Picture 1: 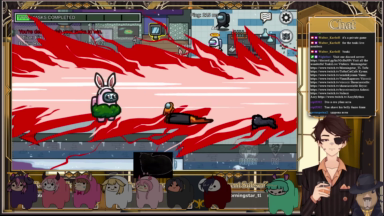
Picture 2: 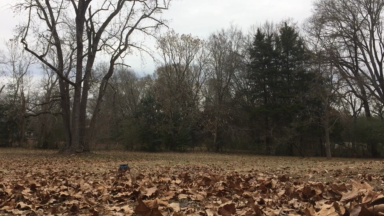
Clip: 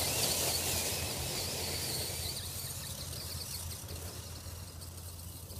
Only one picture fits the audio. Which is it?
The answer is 2